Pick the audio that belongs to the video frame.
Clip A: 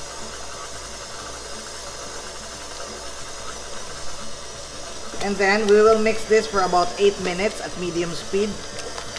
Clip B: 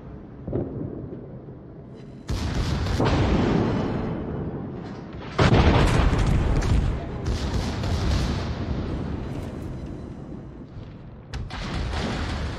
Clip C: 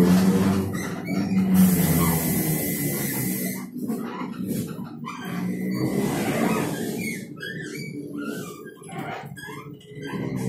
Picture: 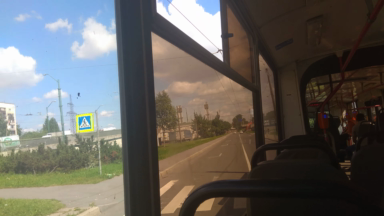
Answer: C